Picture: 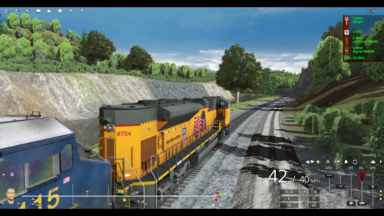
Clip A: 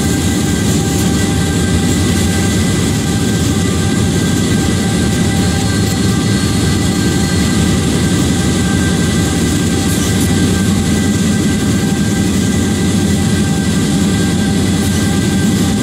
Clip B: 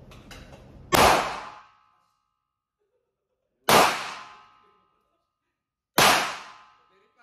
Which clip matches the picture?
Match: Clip A